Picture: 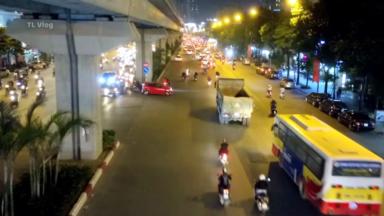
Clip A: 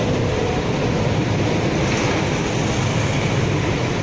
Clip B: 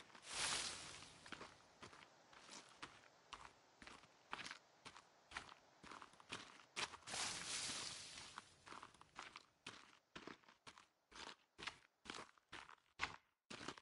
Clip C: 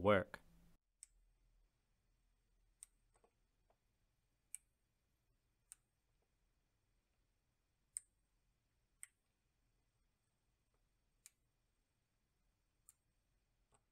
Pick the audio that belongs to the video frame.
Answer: A